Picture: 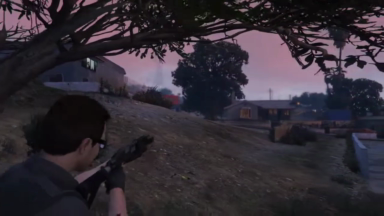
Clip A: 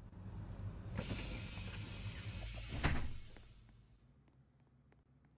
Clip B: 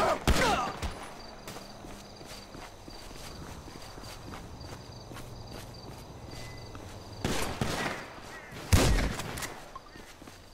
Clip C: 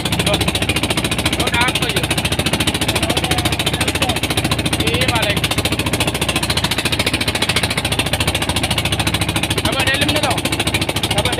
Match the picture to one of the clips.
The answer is B